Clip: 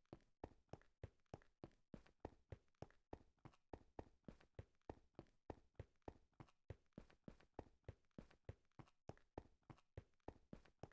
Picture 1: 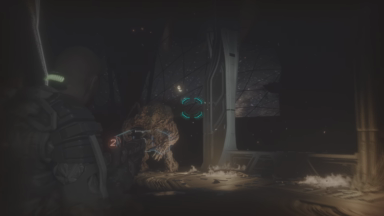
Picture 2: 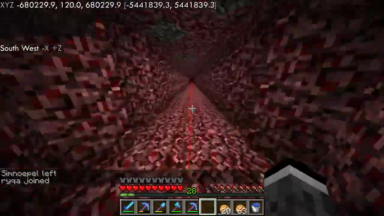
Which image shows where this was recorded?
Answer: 2